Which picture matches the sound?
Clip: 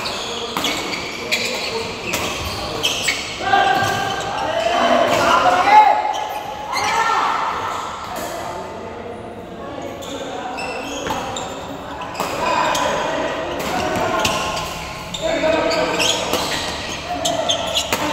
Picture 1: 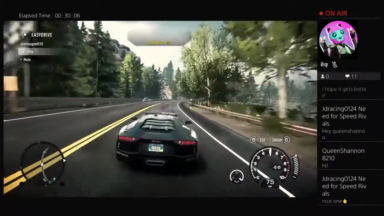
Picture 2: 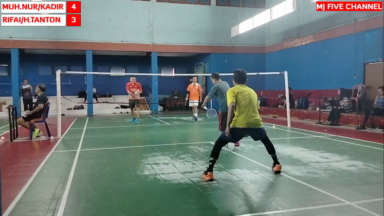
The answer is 2